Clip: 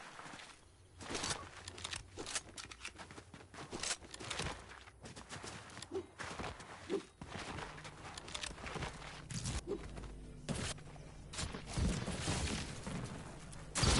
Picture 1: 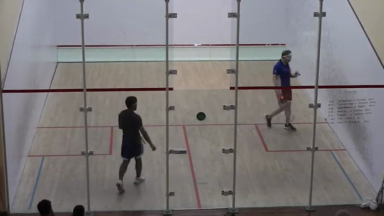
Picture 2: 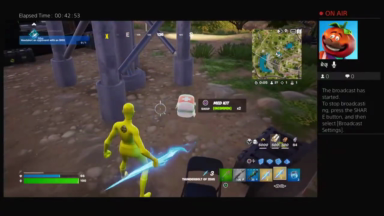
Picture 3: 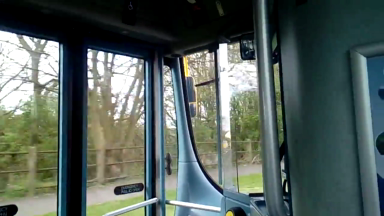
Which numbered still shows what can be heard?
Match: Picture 2